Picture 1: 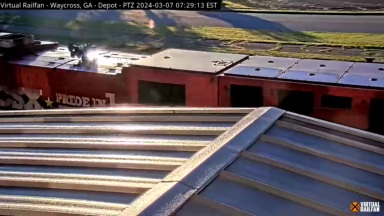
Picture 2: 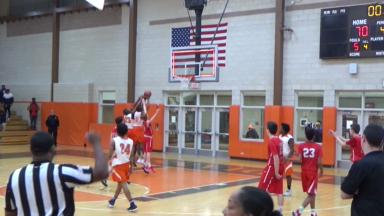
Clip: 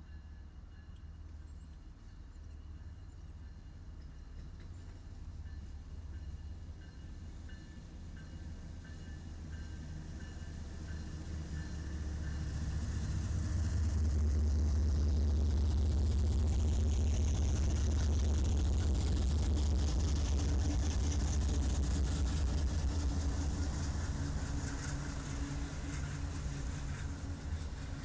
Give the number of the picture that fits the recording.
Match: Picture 1